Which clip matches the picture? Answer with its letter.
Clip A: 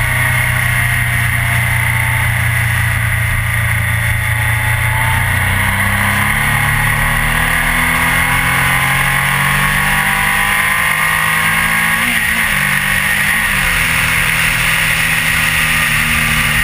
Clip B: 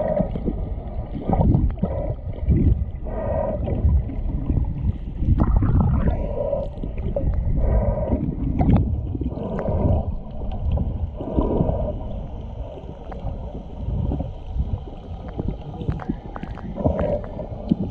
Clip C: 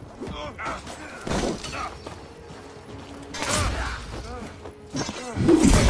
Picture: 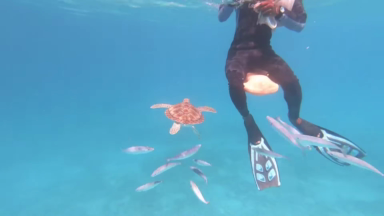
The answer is B